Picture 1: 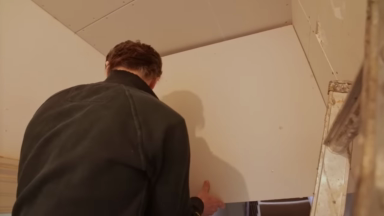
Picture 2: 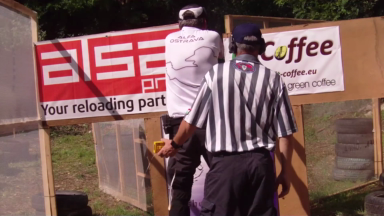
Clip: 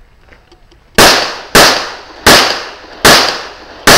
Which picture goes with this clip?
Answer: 2